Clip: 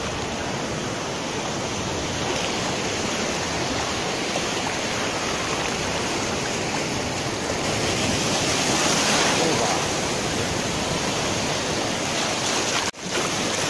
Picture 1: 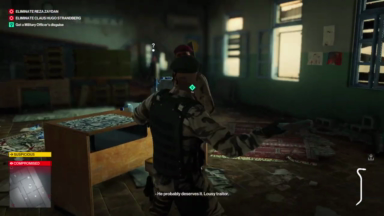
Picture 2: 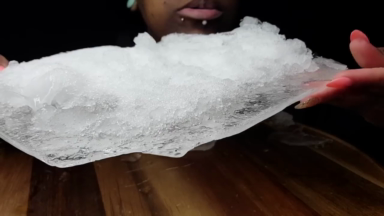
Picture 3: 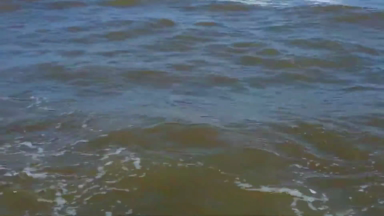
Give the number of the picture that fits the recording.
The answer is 3